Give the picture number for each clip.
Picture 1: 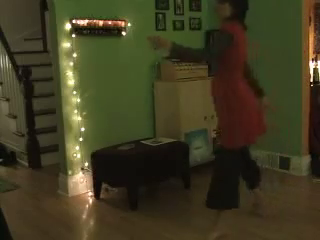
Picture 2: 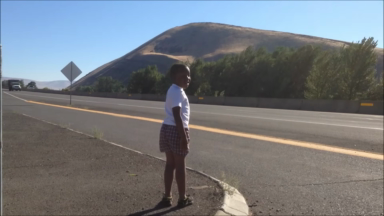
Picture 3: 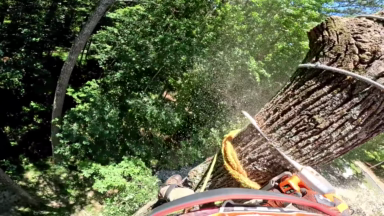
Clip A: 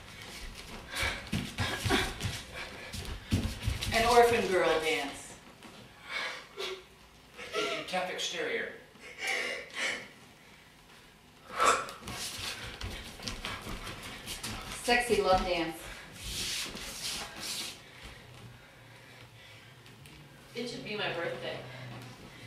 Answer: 1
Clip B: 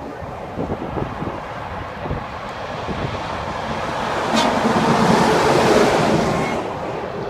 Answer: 2